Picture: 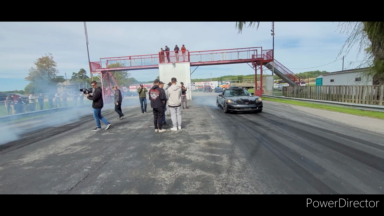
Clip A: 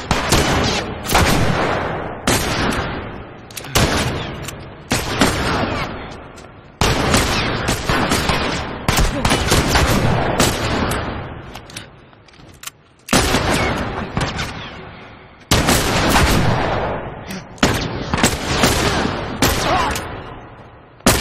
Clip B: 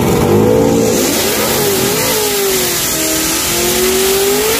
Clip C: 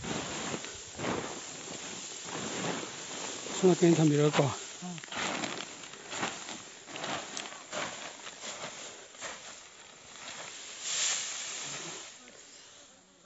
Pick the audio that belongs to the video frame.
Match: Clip B